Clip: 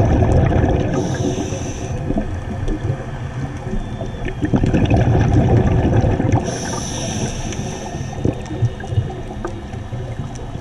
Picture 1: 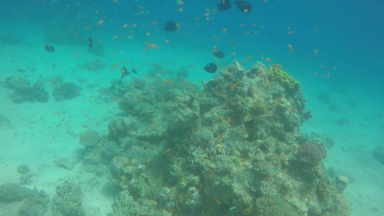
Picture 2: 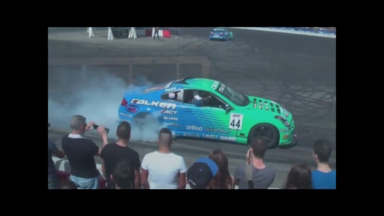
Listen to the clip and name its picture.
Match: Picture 1